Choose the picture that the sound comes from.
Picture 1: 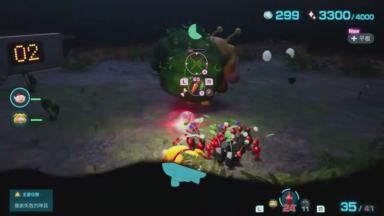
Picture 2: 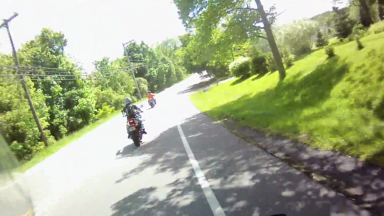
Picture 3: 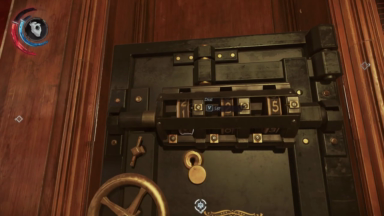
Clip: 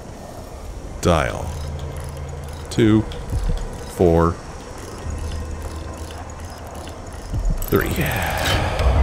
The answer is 3